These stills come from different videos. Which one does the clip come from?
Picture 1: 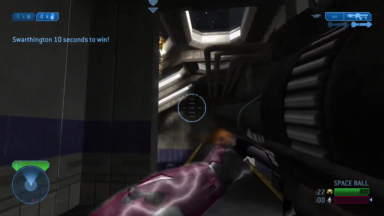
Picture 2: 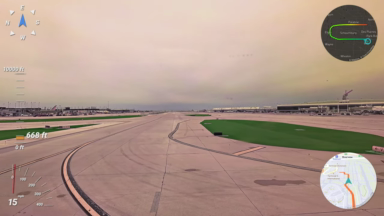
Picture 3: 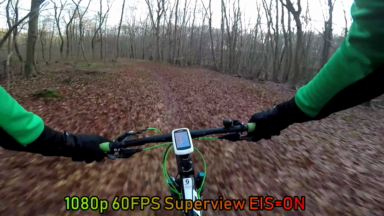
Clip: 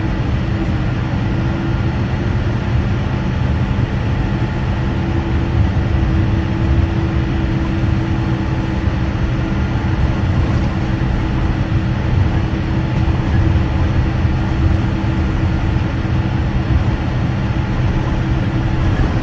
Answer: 2